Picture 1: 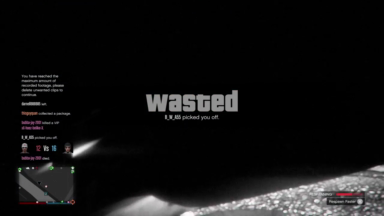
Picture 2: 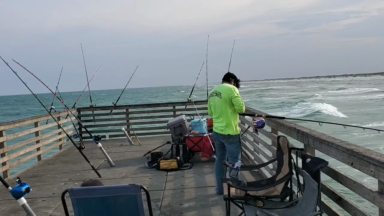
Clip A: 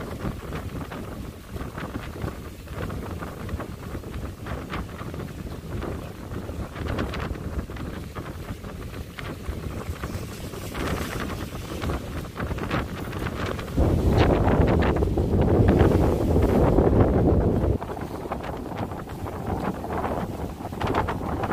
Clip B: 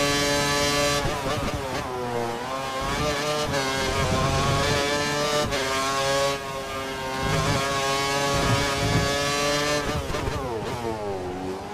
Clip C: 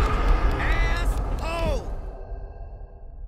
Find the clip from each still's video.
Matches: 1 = C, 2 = A